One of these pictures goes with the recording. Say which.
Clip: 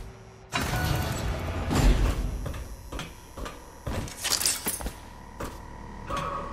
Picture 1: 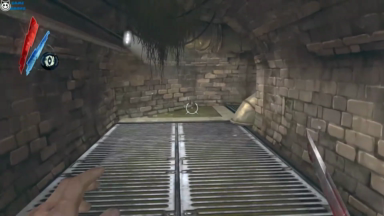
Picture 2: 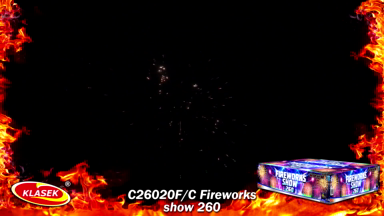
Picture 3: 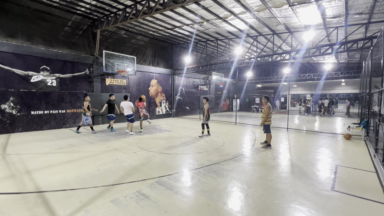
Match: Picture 1